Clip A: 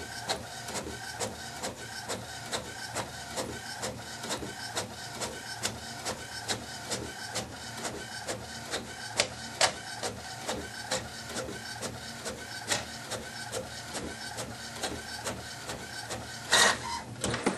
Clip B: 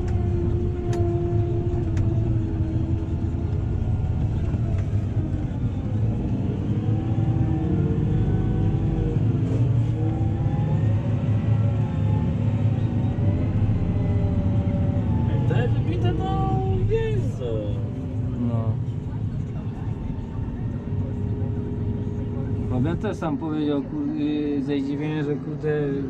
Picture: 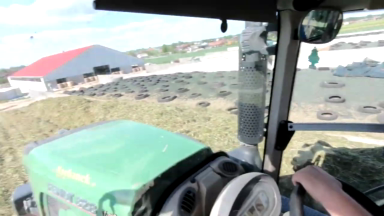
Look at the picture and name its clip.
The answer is B